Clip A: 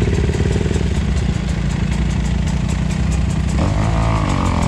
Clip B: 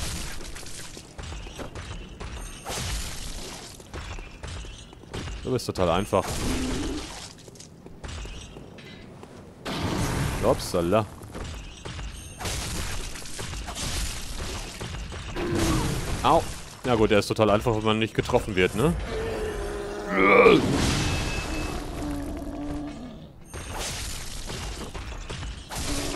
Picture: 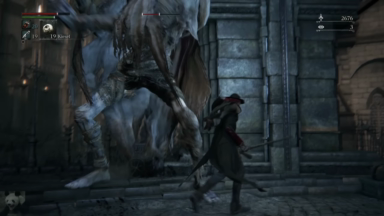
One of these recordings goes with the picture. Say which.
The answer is B